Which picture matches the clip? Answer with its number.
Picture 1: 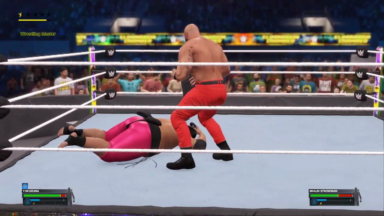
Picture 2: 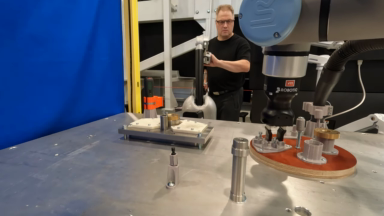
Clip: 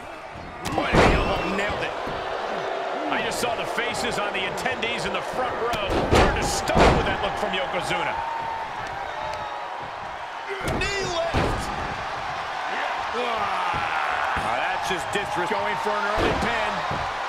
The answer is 1